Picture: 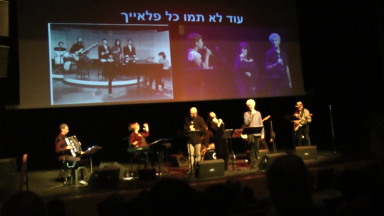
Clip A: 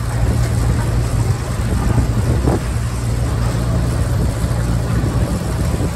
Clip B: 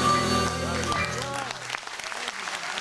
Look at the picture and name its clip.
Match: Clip B